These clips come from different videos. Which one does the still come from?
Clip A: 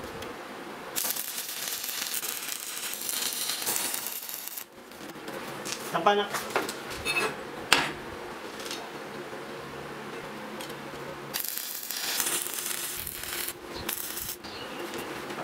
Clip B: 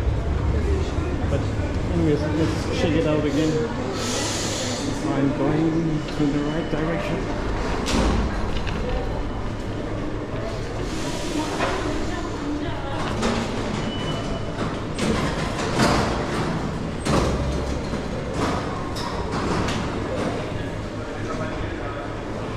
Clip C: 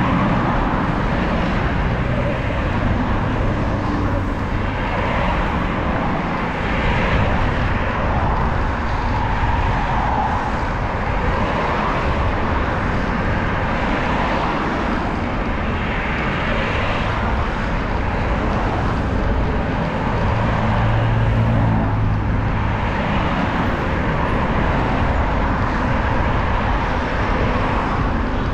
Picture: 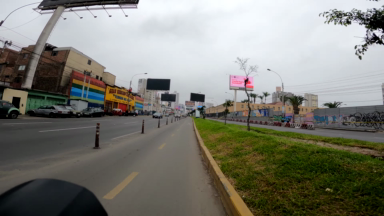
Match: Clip C